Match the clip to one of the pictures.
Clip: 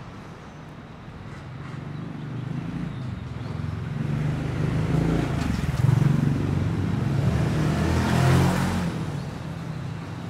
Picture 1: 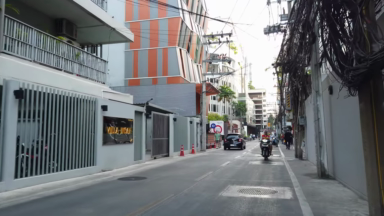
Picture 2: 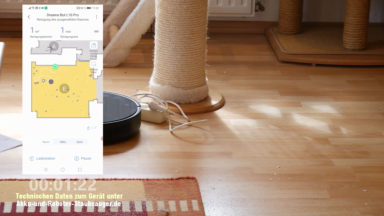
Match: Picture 1